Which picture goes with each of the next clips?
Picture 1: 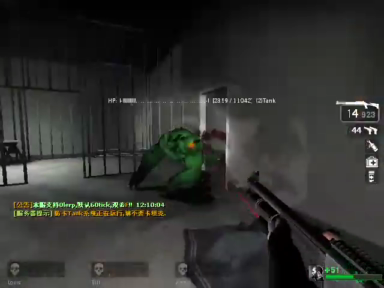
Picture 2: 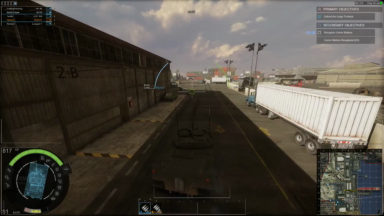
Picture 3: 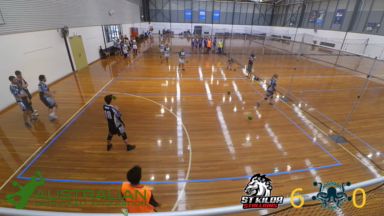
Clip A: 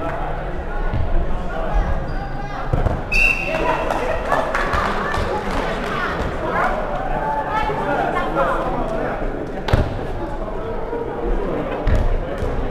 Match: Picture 3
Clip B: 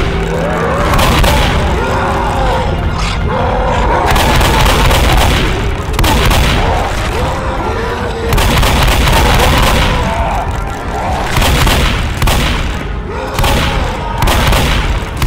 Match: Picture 1